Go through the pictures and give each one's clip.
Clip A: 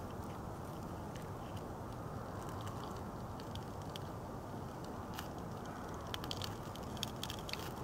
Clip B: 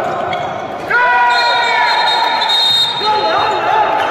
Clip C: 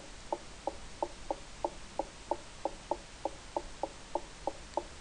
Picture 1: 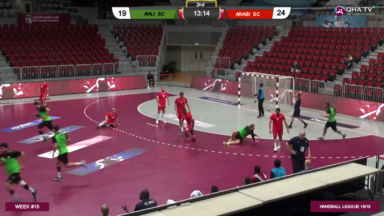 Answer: B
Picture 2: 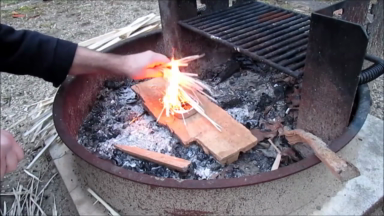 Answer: A